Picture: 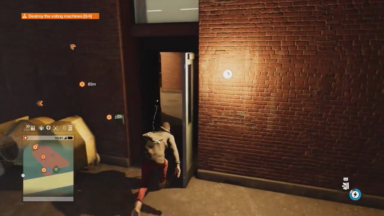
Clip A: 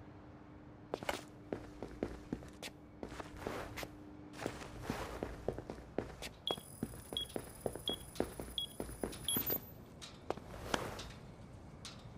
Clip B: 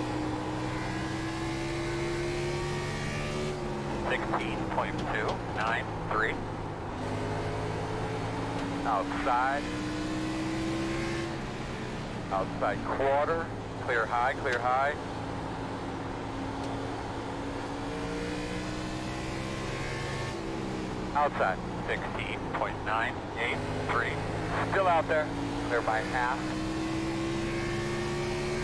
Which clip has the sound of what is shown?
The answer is A